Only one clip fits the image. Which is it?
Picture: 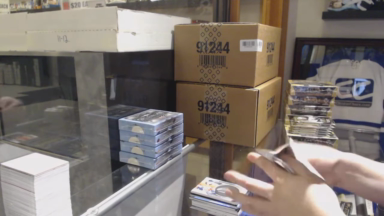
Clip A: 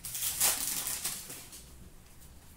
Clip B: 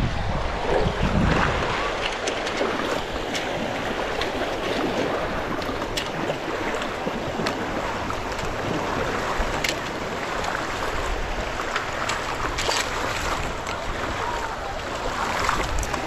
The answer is A